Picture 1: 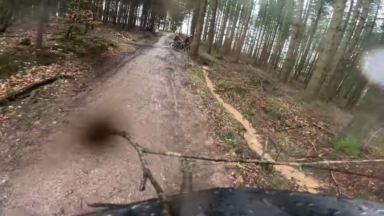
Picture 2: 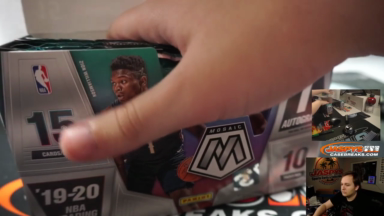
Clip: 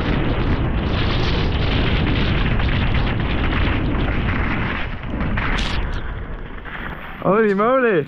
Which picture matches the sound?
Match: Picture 1